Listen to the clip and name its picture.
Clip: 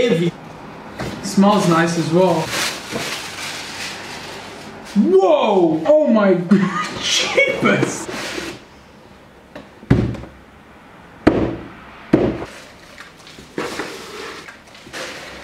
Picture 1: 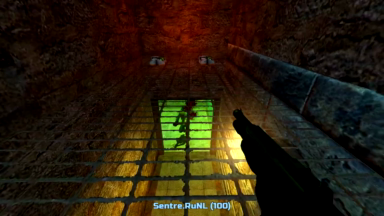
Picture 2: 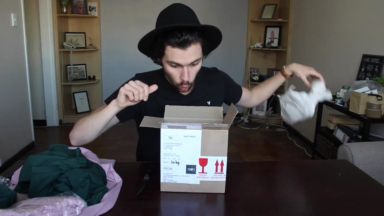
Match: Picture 2